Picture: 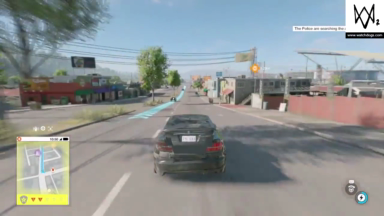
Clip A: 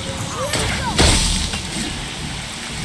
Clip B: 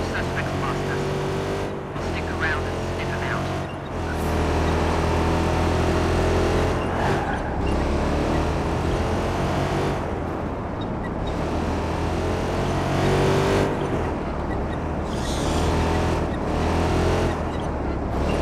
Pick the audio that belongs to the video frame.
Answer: B